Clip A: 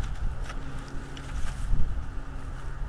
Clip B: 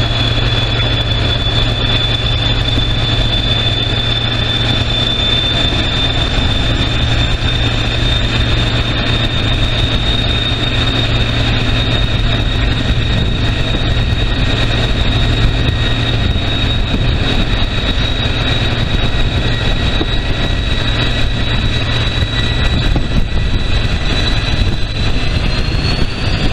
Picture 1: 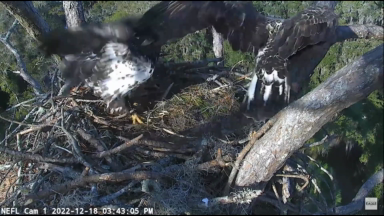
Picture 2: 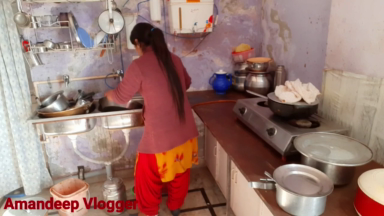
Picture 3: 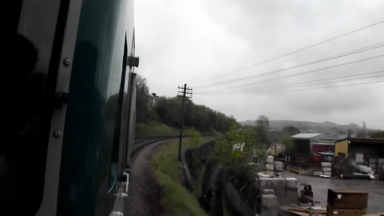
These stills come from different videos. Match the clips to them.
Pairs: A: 1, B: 3